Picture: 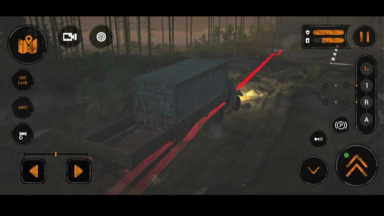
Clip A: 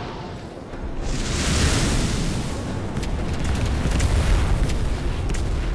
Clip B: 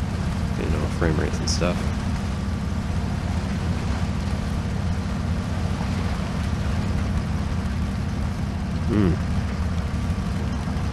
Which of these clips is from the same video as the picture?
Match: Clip B